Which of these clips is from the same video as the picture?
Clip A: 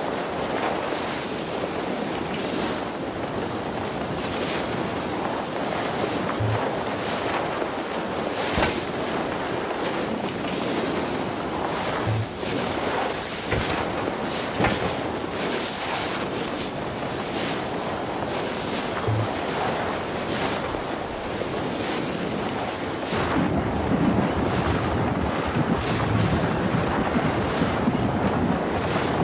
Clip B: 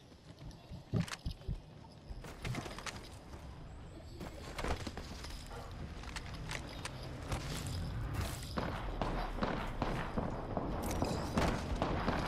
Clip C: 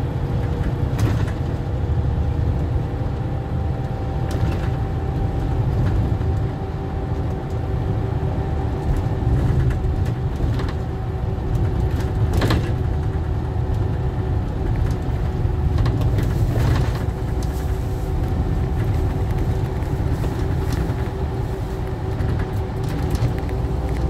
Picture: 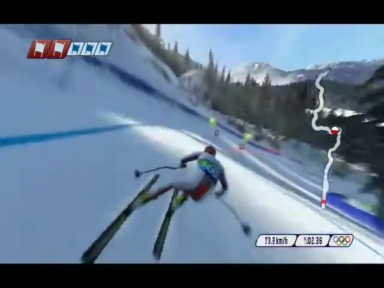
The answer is A